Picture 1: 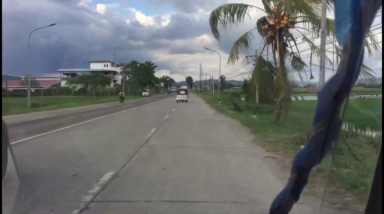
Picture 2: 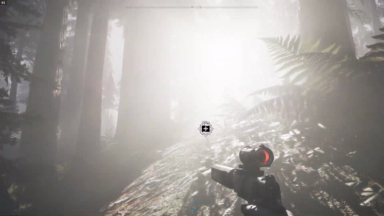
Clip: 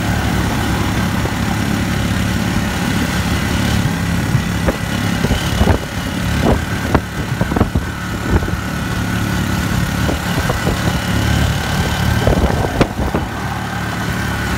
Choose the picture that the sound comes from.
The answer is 1